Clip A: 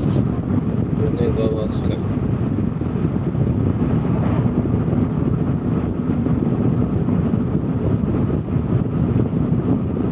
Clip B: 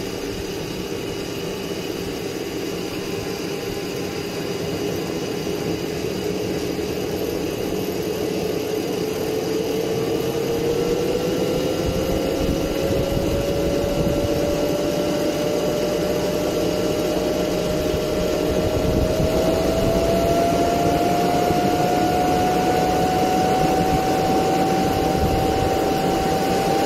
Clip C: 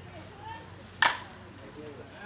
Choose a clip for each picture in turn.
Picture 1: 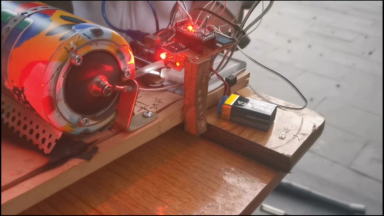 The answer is B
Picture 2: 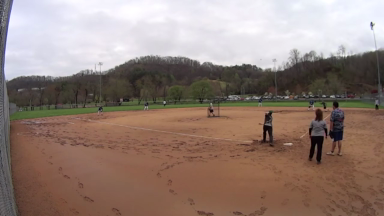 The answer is C